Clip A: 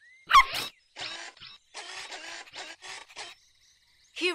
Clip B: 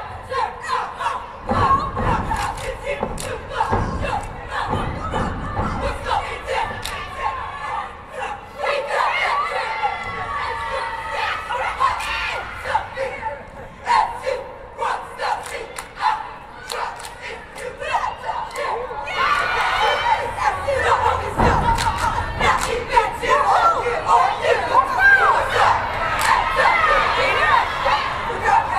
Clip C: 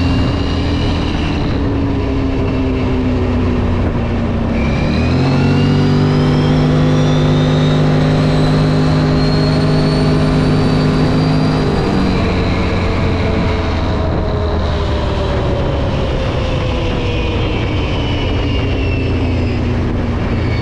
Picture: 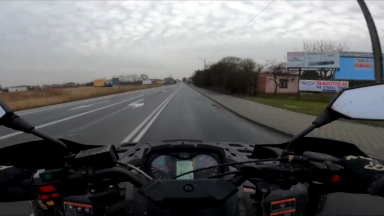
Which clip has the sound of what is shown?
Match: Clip C